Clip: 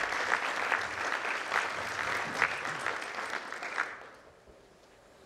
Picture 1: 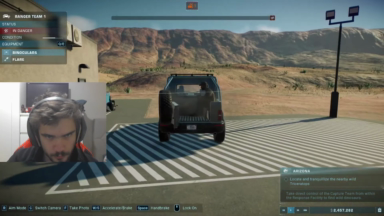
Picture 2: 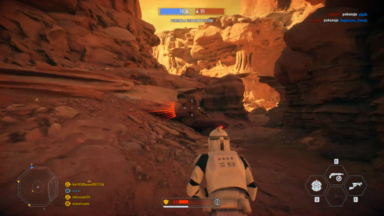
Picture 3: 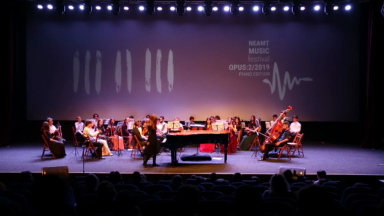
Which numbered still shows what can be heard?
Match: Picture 3